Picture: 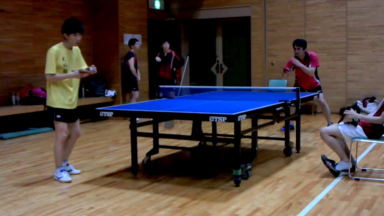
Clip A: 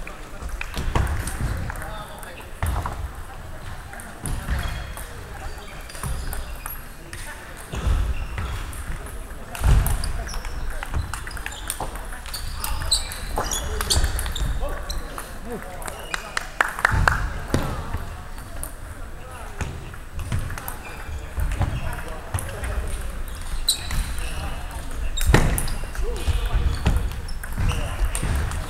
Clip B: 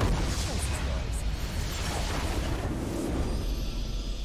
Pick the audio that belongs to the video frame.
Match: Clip A